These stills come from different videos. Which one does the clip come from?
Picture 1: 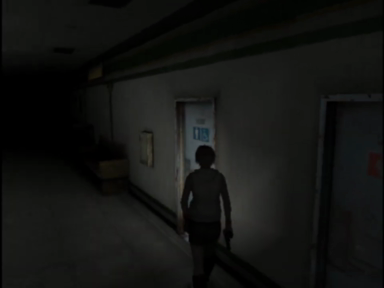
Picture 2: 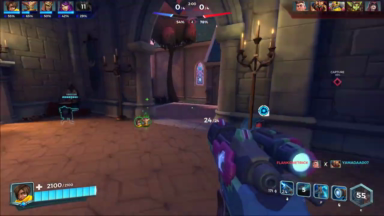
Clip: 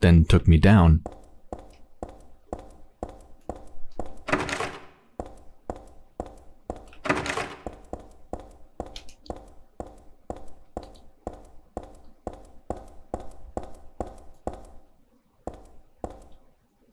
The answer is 1